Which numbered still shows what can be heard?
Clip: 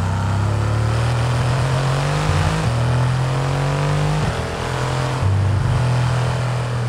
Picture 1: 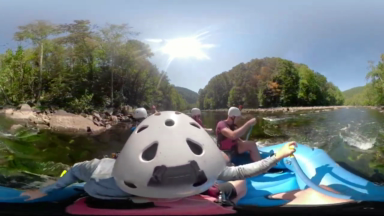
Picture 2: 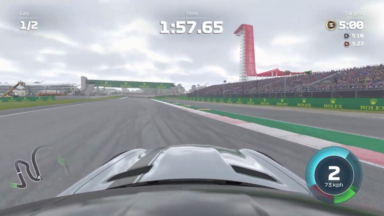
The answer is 2